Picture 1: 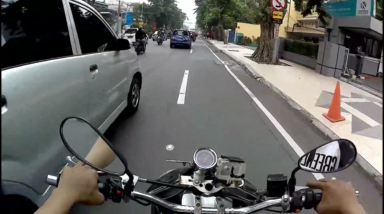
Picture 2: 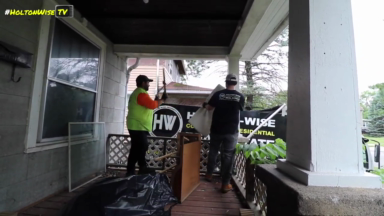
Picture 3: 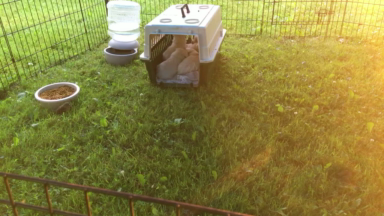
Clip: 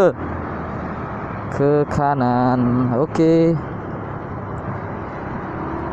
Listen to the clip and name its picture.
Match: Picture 1